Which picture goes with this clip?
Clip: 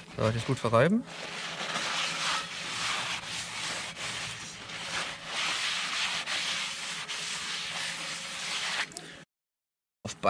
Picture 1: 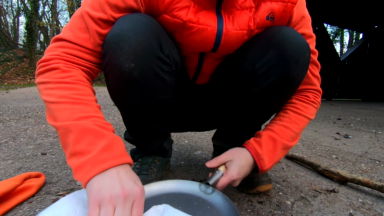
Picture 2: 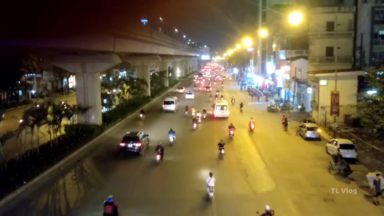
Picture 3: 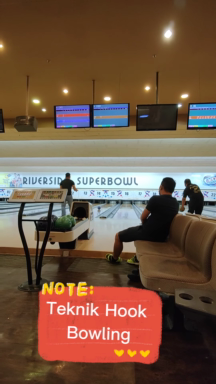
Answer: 1